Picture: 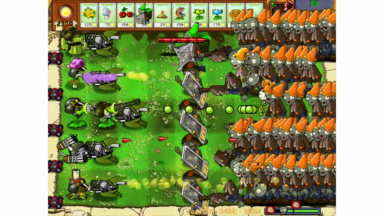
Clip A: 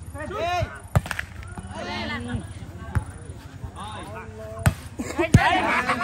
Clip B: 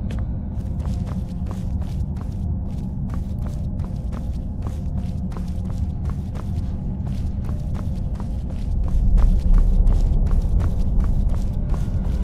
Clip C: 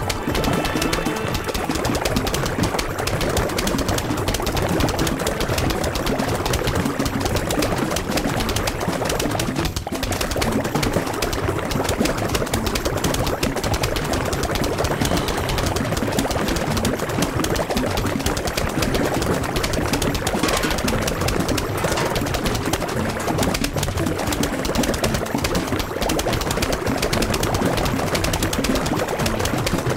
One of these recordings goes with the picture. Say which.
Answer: C